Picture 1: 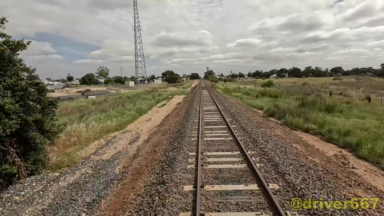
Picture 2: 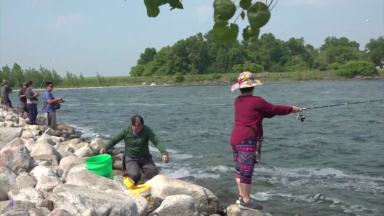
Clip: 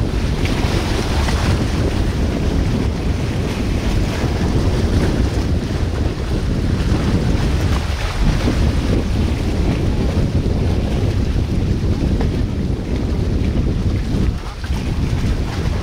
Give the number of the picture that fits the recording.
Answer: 2